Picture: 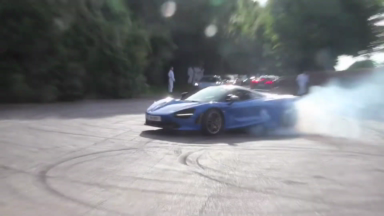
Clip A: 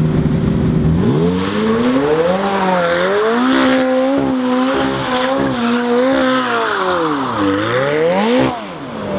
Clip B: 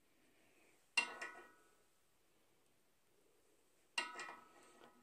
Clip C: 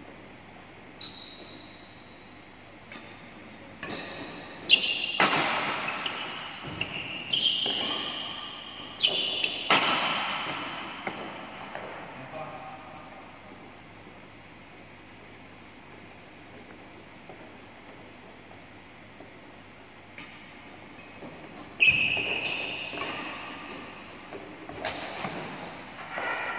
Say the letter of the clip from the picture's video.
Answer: A